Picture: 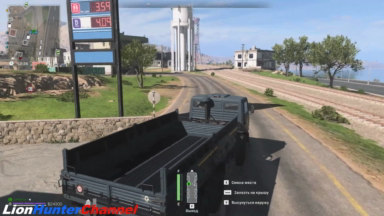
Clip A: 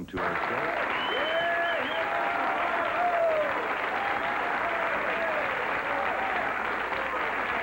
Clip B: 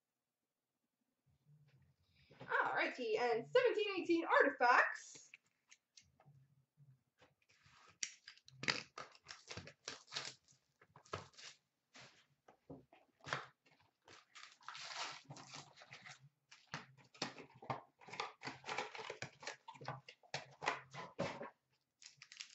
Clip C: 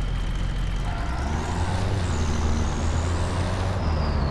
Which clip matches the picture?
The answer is C